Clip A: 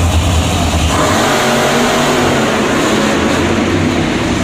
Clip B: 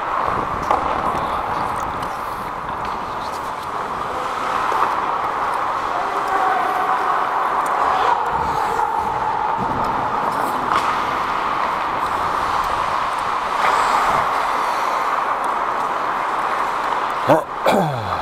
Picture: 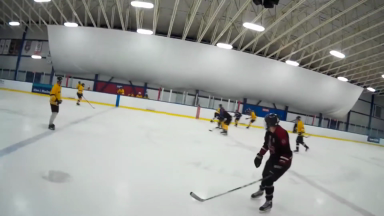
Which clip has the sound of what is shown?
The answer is B